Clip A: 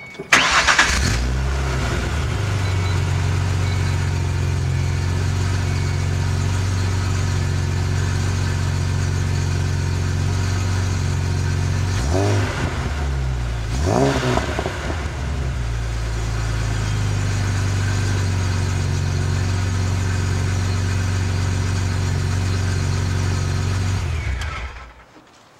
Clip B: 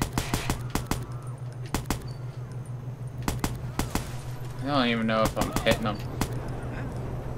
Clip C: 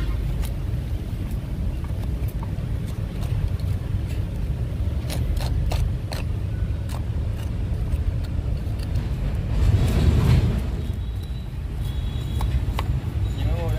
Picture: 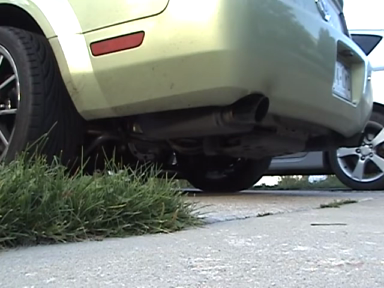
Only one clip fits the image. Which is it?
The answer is A